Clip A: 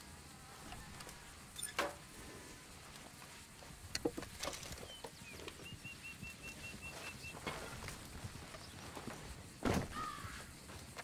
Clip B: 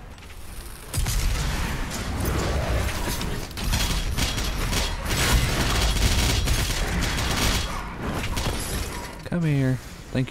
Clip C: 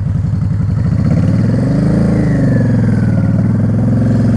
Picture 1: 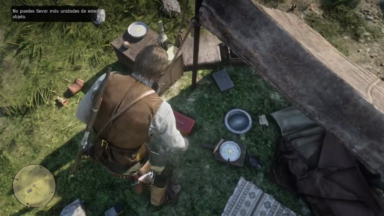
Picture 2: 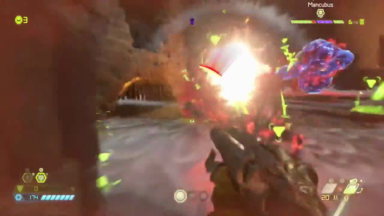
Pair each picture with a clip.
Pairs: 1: A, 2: B